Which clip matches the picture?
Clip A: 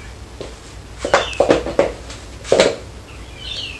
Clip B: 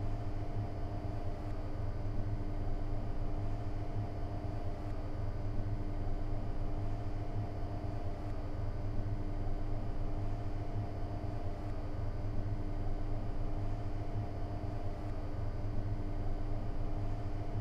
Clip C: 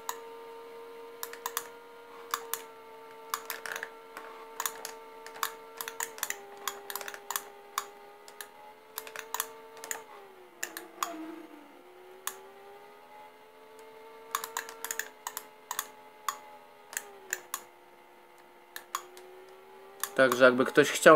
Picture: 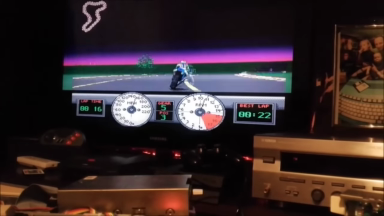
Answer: C